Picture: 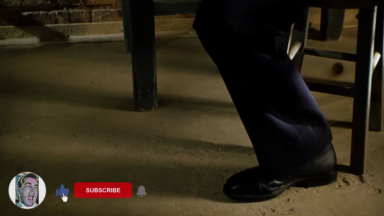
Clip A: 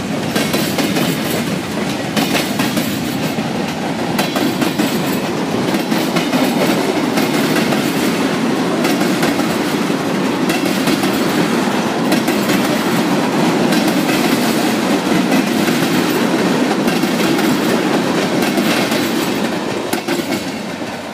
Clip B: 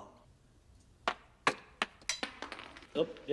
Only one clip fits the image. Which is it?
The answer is B